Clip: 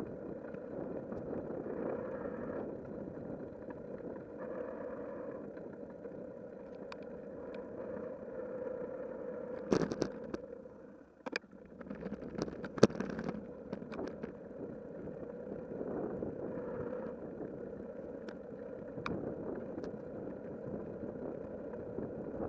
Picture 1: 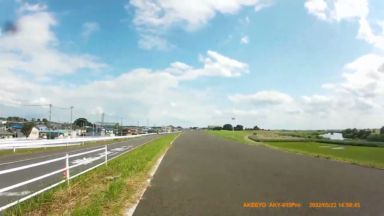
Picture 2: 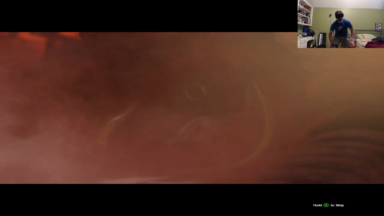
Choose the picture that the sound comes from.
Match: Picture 1